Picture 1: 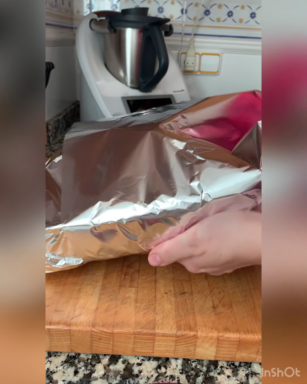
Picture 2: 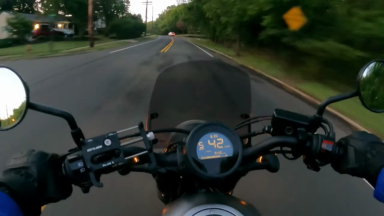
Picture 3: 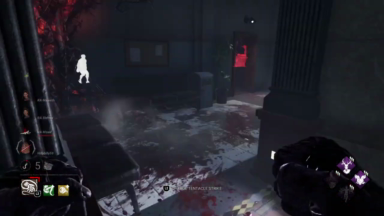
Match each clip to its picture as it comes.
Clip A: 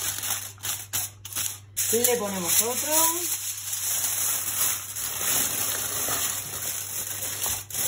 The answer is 1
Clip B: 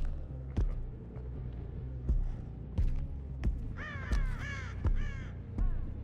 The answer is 3